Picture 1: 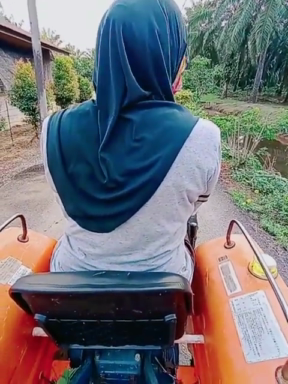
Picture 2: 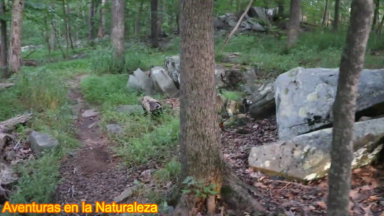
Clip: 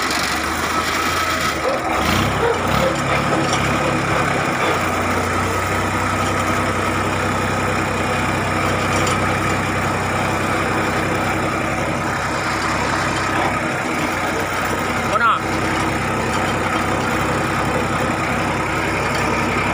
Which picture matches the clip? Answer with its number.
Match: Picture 1